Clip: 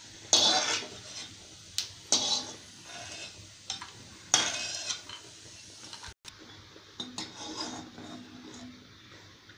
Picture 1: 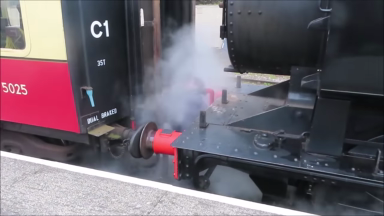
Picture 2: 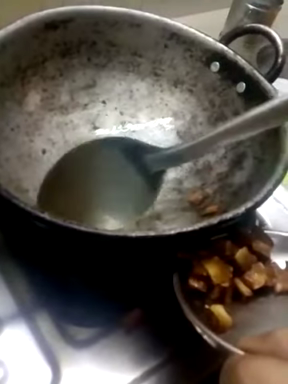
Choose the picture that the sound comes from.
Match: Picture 2